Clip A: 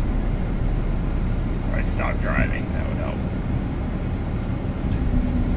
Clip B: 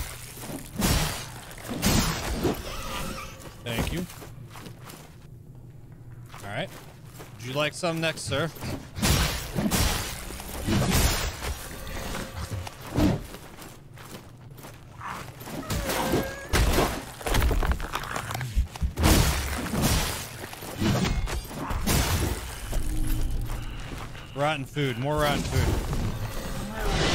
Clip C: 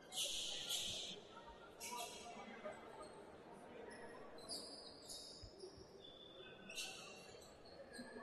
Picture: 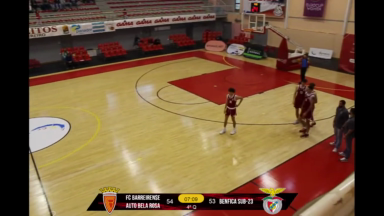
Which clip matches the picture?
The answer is C